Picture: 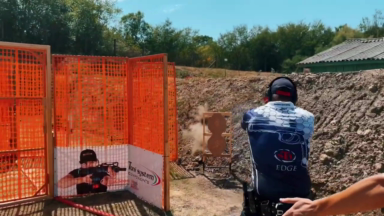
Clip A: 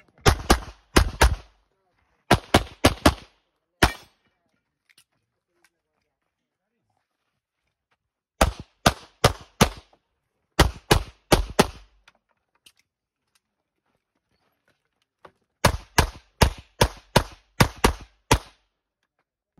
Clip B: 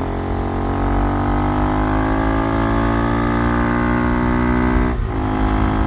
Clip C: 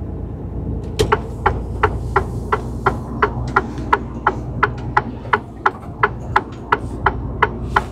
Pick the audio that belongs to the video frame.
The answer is A